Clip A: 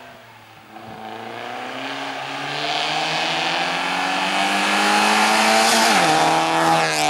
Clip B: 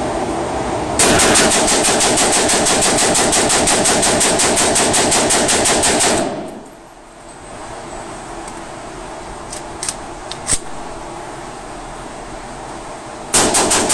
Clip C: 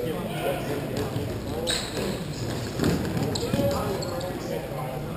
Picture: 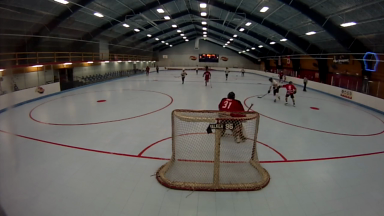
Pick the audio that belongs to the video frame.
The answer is C